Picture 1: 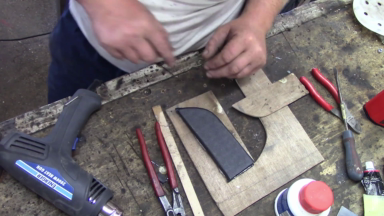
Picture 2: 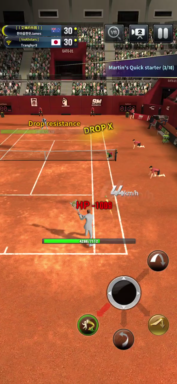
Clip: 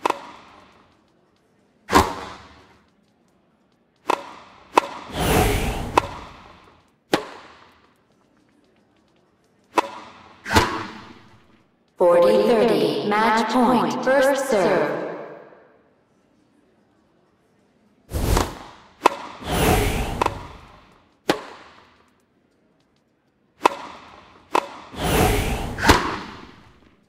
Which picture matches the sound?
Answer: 2